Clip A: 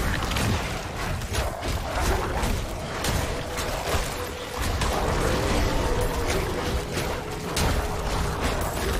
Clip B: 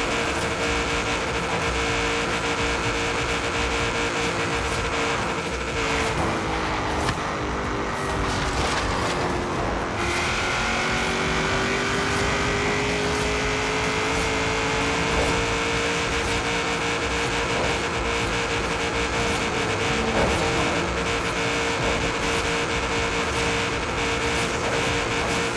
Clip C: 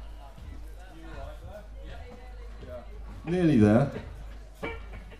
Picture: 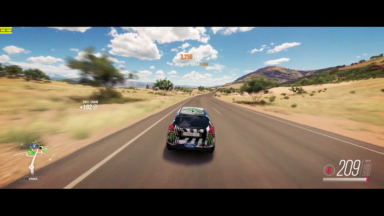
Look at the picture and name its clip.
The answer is B